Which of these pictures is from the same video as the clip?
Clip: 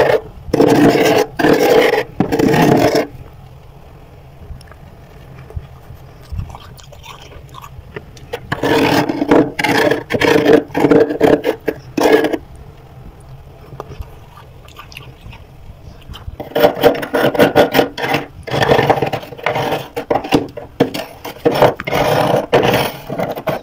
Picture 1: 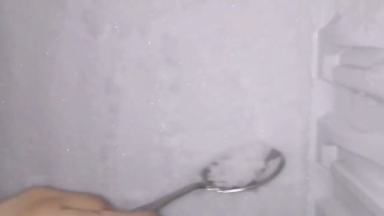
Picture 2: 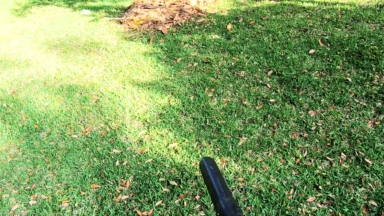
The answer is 1